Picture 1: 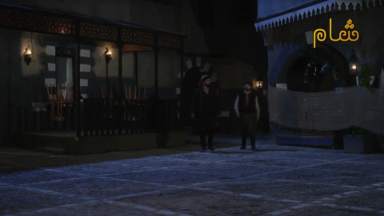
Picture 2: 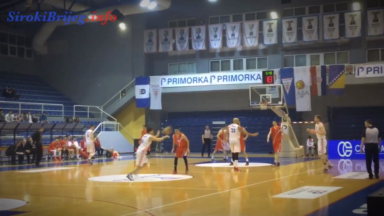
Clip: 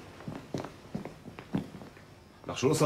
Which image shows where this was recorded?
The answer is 1